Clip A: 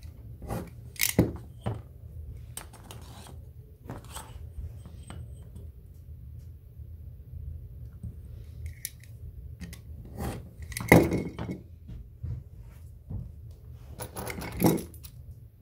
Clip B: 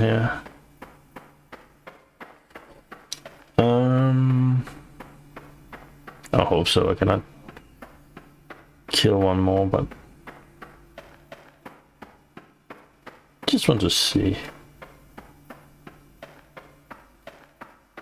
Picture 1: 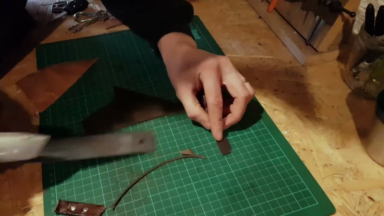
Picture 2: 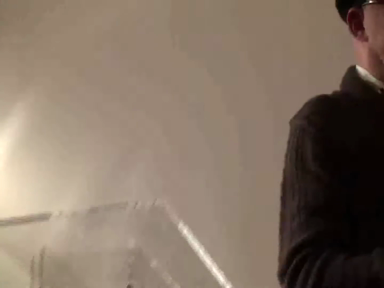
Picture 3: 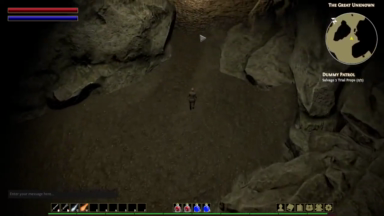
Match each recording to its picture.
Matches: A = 1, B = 3